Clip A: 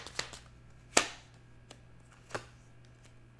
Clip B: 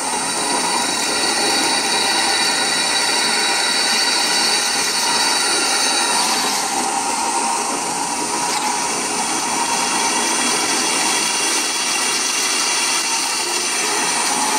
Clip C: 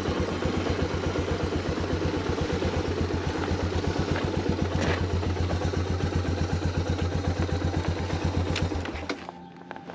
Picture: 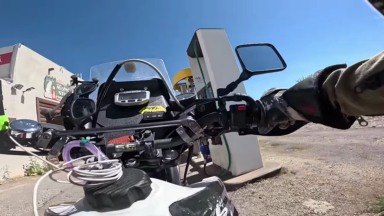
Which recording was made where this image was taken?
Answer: C